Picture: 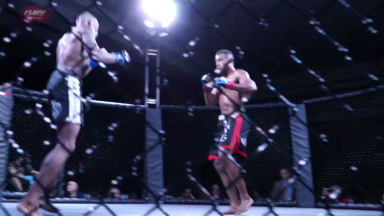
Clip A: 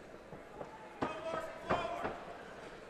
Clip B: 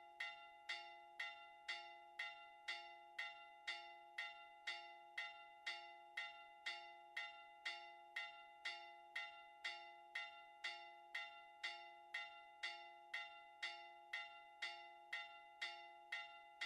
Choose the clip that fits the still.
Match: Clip A